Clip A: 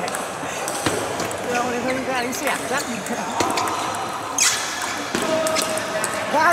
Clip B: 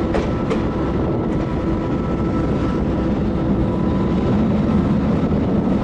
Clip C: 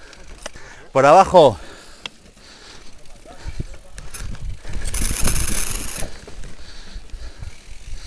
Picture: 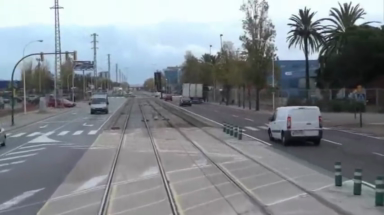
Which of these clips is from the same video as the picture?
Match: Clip B